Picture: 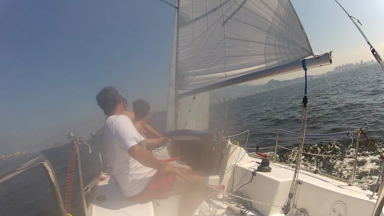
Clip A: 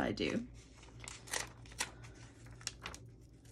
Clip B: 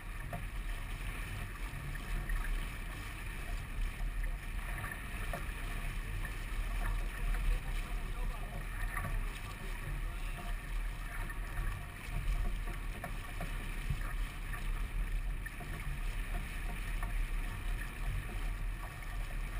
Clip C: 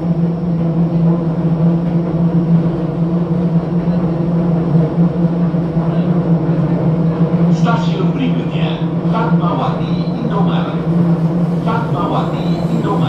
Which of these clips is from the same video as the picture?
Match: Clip B